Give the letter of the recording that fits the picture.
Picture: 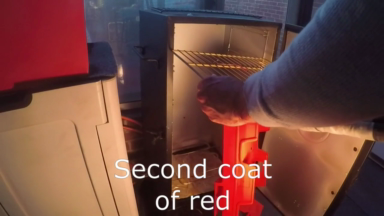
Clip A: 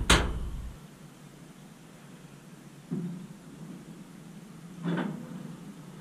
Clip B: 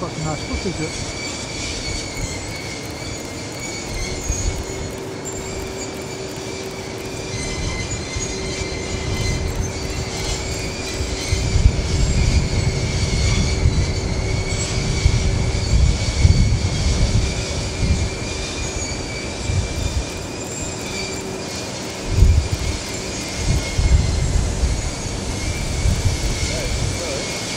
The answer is A